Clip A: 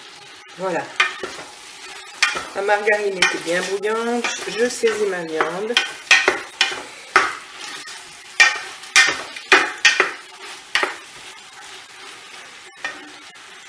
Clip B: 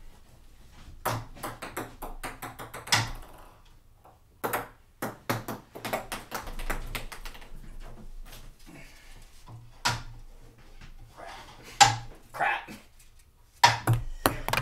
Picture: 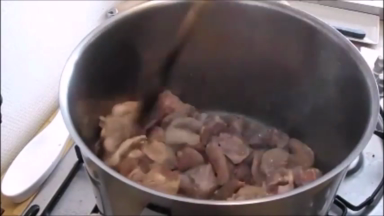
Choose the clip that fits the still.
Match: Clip A